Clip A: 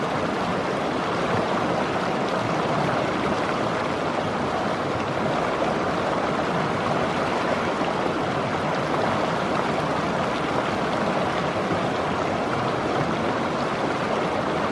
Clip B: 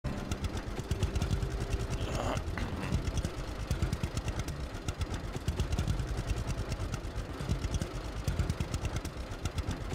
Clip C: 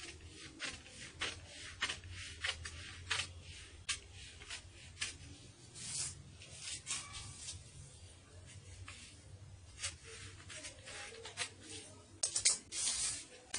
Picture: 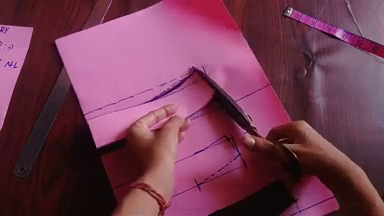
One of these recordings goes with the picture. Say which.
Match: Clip C